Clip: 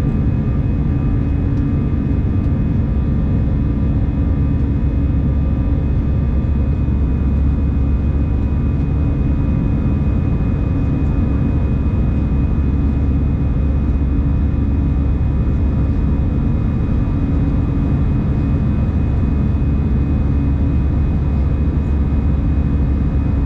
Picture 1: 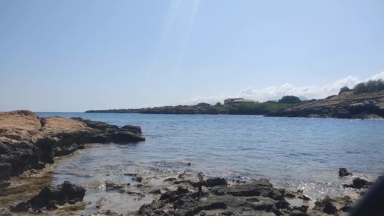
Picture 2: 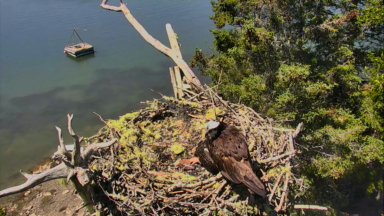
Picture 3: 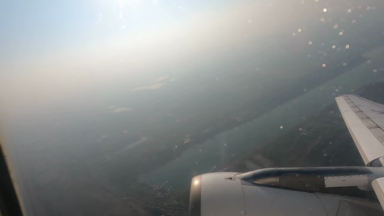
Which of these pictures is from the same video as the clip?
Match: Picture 3